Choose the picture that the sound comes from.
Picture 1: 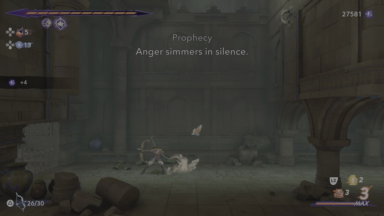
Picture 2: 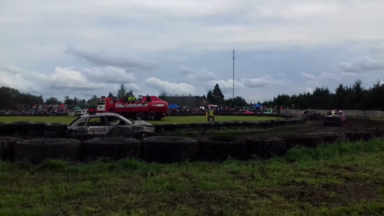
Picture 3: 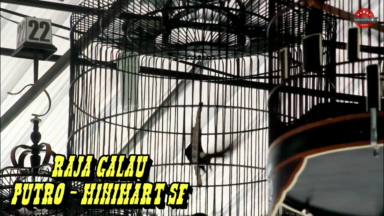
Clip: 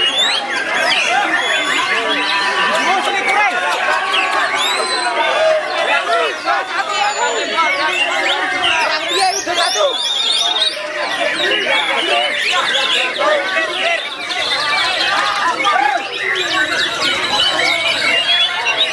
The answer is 3